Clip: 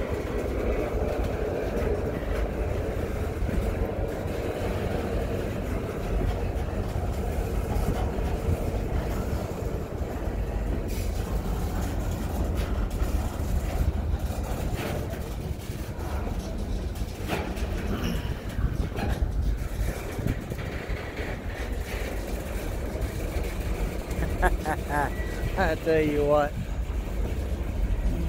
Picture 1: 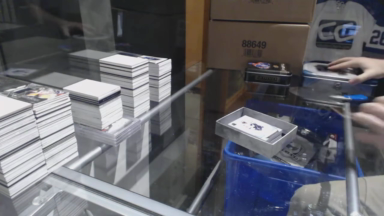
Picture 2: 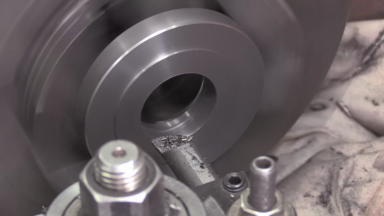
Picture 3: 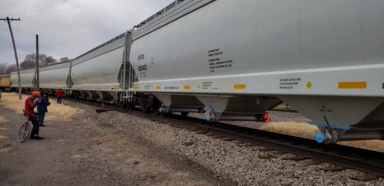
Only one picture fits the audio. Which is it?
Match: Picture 3